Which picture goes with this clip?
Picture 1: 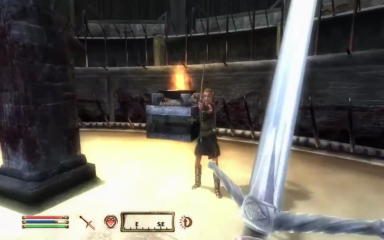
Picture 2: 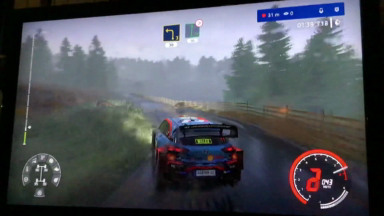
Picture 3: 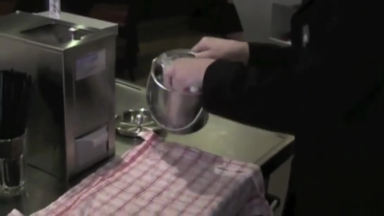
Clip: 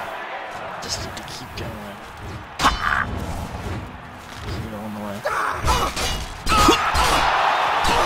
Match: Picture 1